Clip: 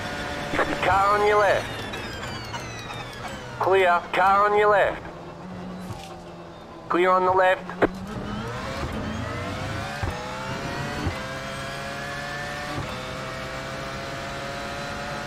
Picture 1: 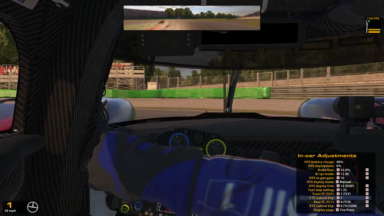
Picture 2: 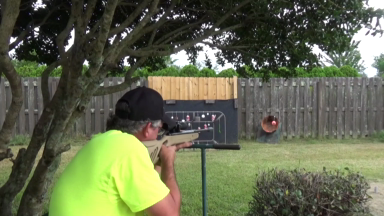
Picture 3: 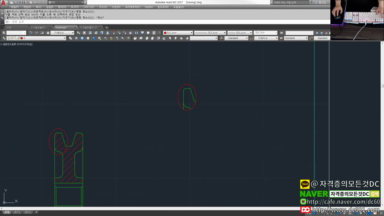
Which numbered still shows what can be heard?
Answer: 1